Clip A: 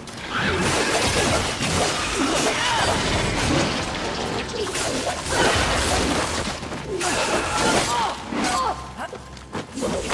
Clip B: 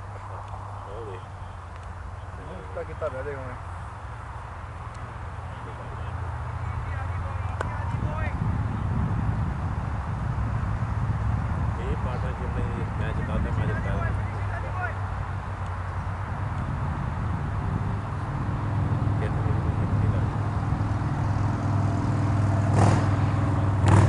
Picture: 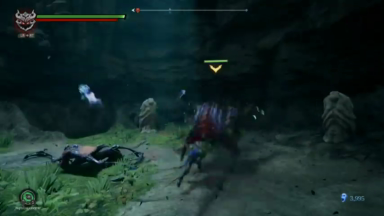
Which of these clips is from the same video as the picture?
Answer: A